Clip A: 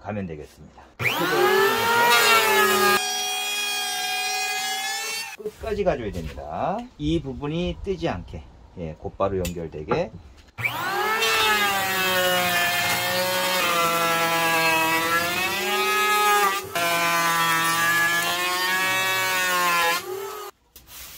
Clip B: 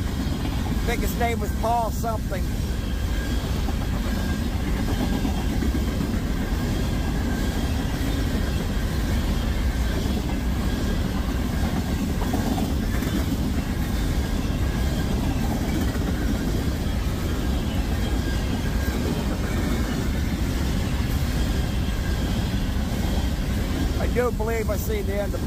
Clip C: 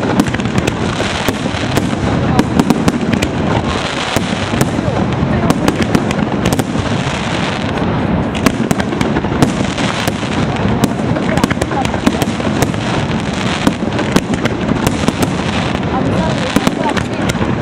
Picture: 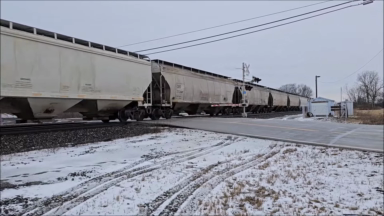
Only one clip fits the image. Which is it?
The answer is B